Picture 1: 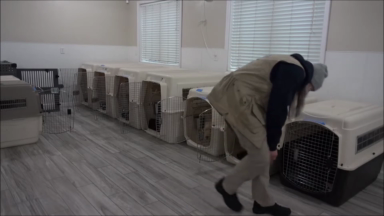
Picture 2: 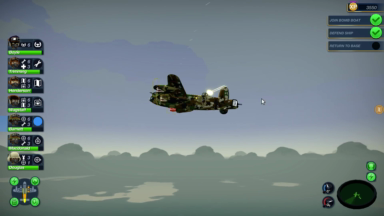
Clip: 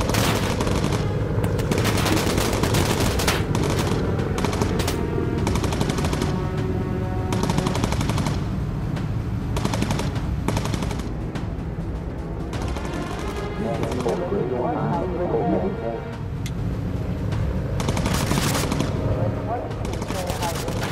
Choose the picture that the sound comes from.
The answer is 2